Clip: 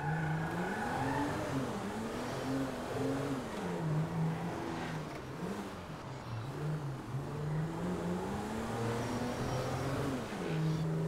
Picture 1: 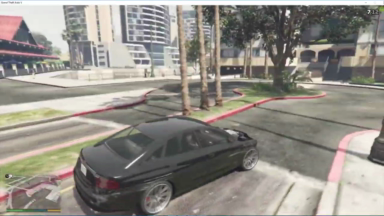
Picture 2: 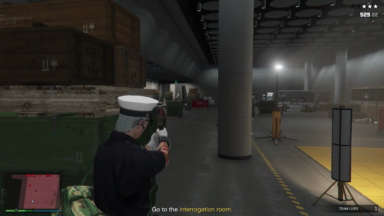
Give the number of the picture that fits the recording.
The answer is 1